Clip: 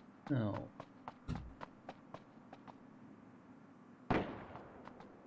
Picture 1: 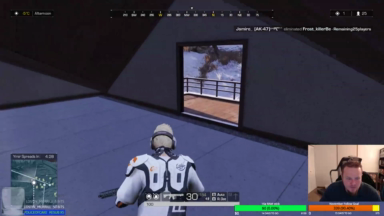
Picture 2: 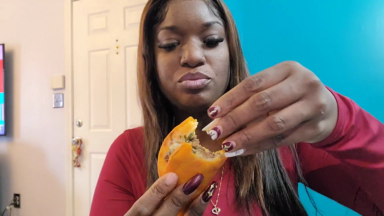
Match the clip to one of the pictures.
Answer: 1